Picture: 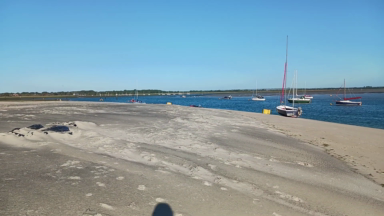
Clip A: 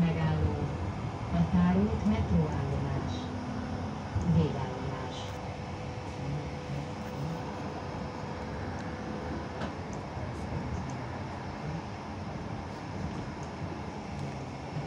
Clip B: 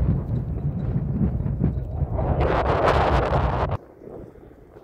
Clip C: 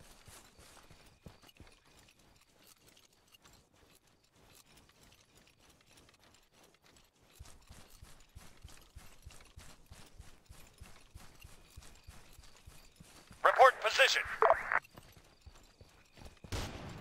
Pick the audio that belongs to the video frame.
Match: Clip B